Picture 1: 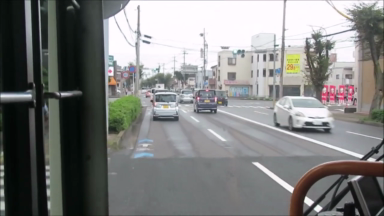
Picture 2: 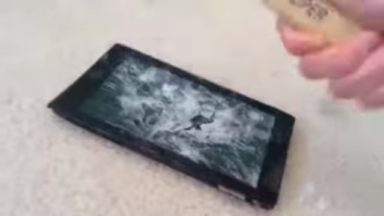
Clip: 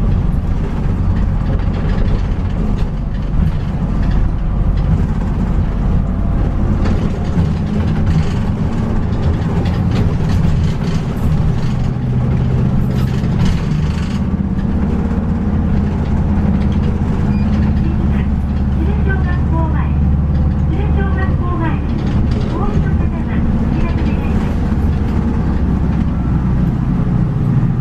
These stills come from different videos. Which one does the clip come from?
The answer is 1